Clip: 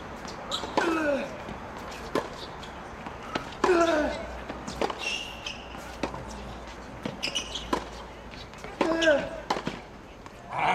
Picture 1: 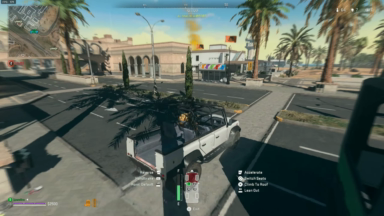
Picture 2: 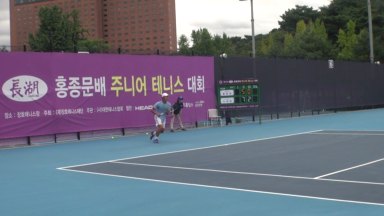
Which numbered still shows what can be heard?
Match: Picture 2